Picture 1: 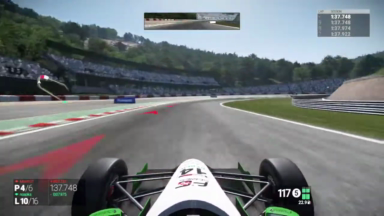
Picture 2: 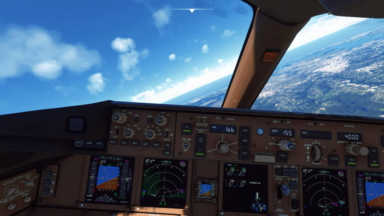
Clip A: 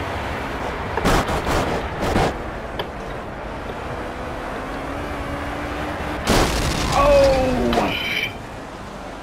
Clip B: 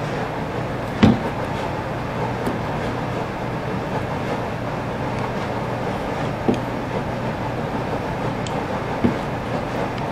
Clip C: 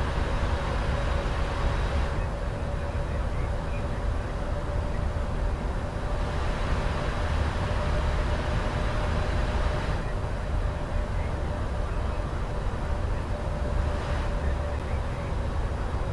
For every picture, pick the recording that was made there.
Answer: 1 A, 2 C